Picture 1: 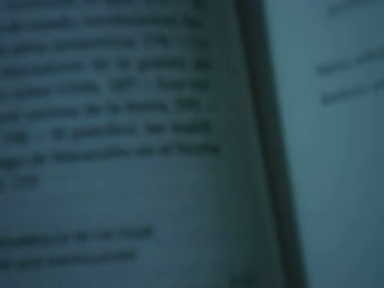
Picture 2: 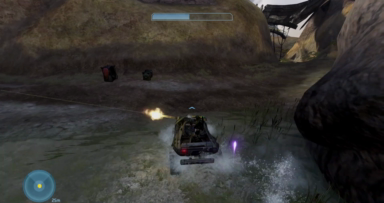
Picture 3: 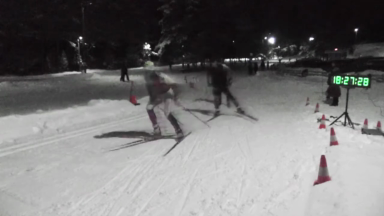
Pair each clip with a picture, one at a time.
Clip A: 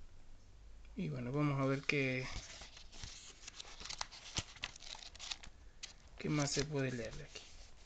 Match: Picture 1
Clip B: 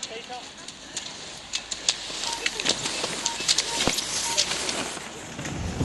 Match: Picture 3